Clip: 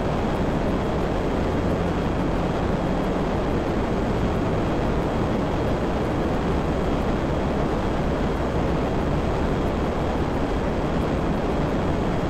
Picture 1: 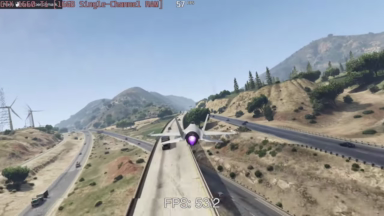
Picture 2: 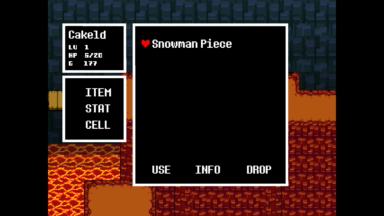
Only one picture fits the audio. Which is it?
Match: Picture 1